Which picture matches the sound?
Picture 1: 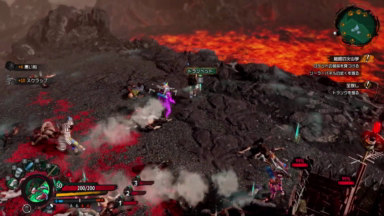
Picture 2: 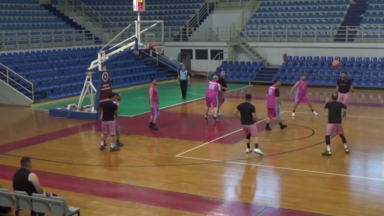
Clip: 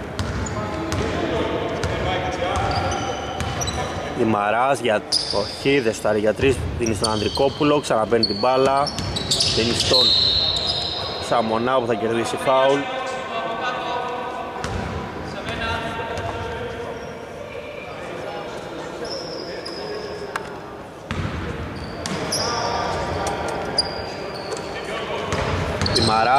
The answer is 2